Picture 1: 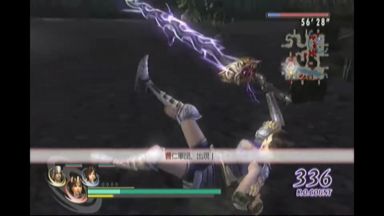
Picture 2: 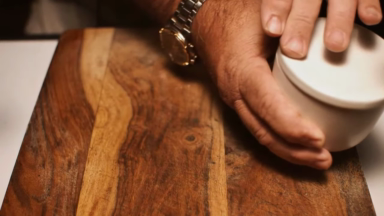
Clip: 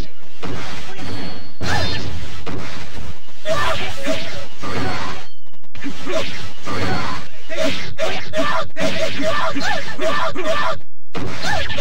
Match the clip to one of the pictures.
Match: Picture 1